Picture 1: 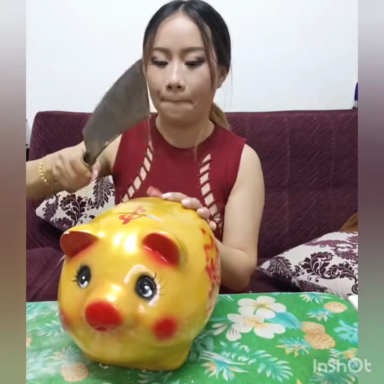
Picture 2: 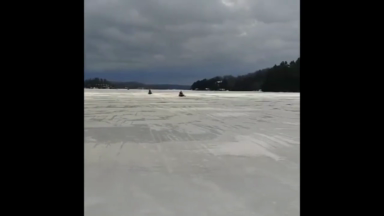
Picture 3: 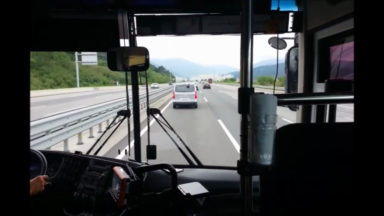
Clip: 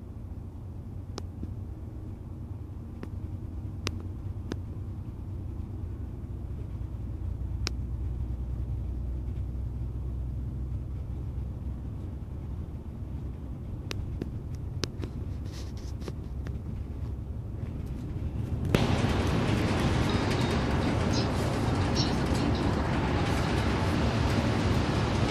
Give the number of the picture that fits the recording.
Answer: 3